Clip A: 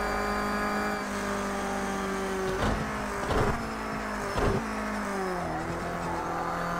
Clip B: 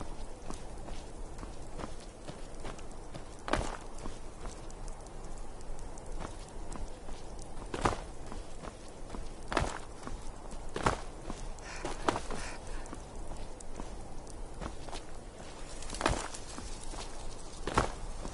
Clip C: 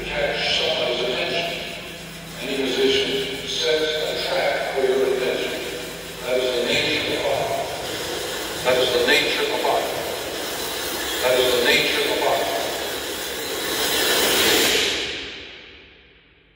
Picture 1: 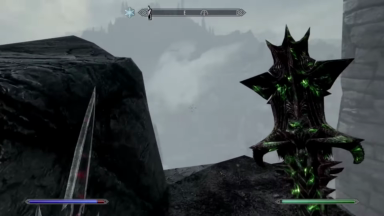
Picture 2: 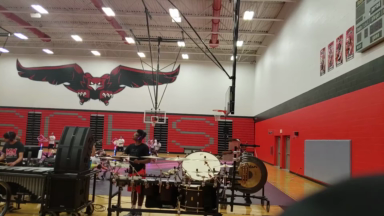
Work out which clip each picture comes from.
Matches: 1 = B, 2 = C